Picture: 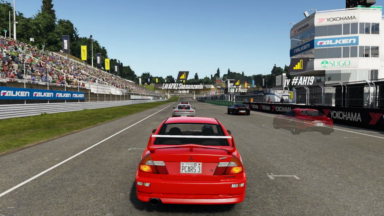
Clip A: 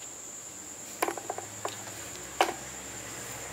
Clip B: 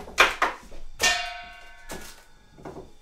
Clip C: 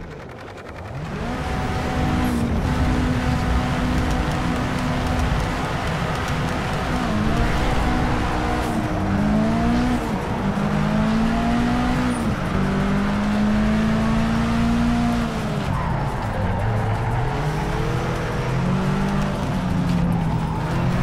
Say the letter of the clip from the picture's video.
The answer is C